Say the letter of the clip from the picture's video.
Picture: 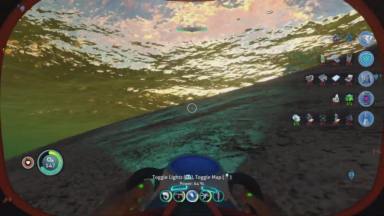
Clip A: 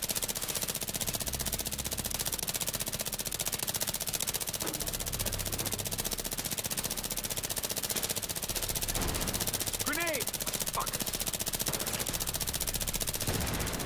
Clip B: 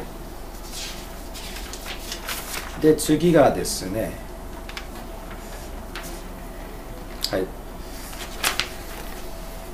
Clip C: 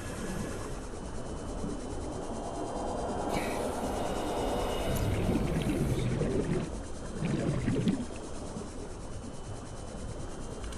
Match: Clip C